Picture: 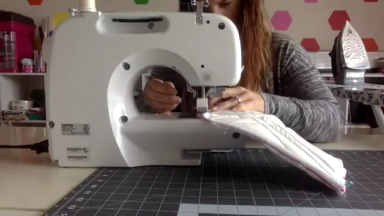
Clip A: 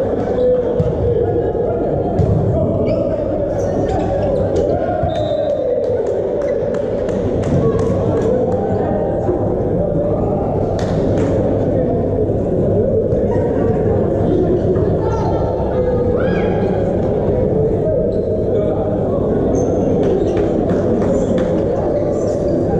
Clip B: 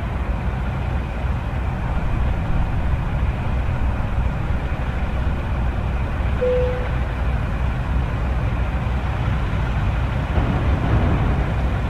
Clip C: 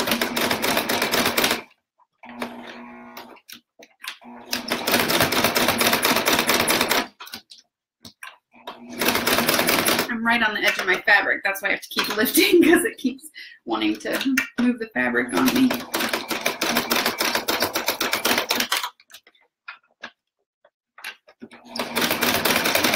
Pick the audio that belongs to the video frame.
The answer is C